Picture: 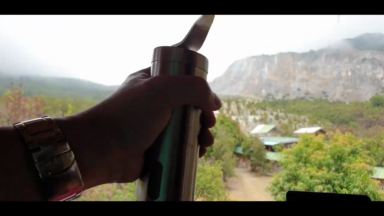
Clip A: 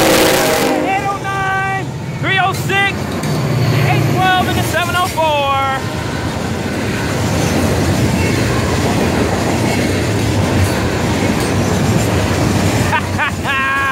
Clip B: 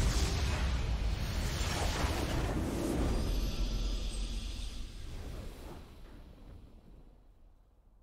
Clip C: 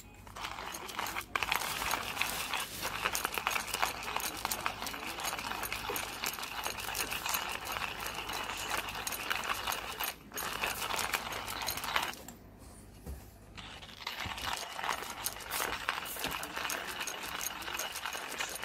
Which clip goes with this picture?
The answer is C